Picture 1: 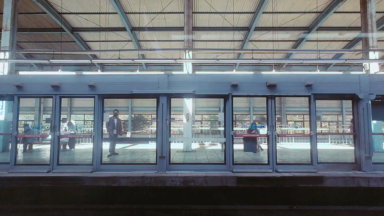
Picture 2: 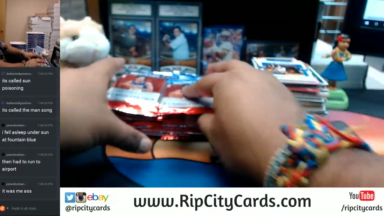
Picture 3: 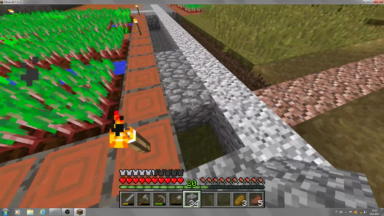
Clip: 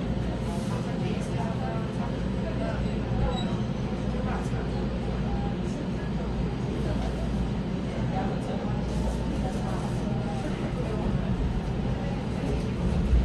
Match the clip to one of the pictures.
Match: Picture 1